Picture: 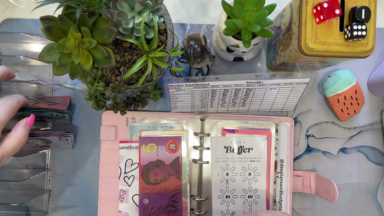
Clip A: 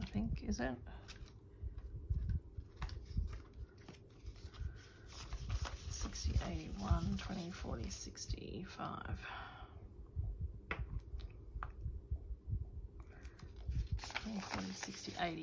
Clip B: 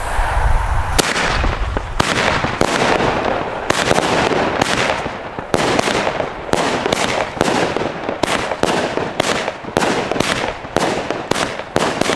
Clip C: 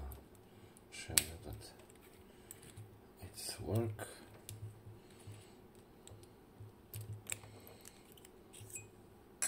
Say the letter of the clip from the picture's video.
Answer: A